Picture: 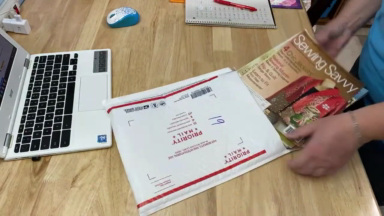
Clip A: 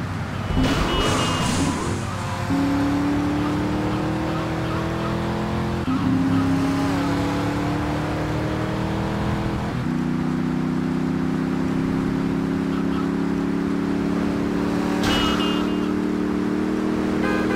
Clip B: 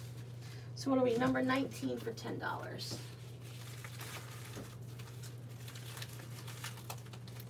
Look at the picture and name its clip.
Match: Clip B